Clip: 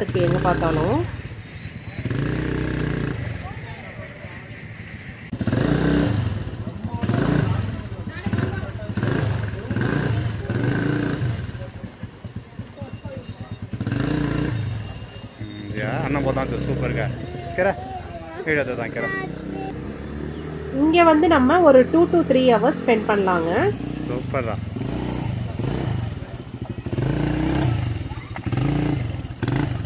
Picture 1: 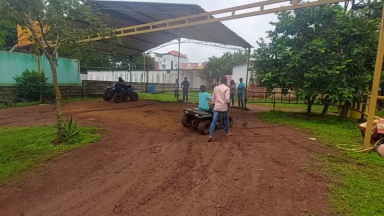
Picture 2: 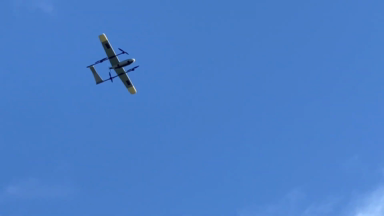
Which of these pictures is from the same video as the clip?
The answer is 1